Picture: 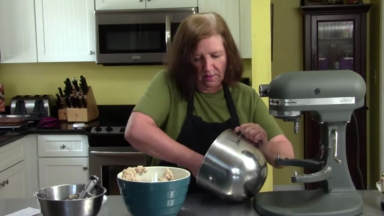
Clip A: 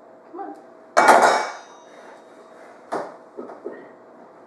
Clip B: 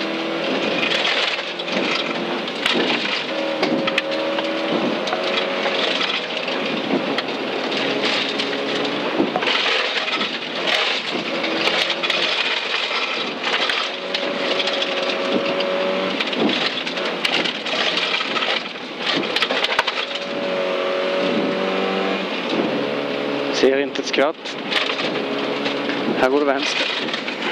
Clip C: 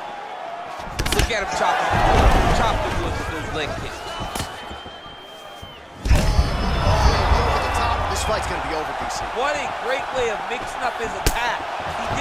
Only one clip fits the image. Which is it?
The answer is A